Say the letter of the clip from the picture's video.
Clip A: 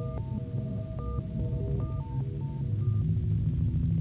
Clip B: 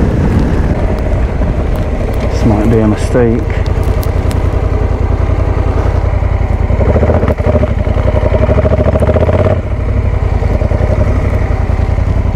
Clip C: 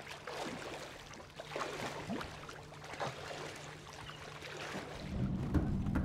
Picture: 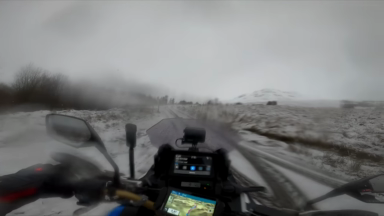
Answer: B